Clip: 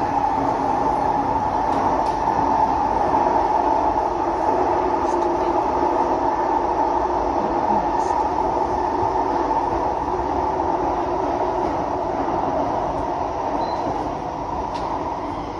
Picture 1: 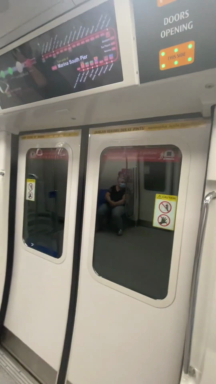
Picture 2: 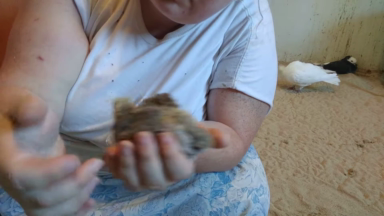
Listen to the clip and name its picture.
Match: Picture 1